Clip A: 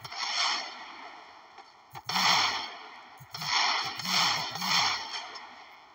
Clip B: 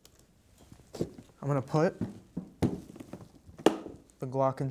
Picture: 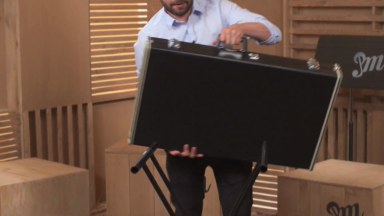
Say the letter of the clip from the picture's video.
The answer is B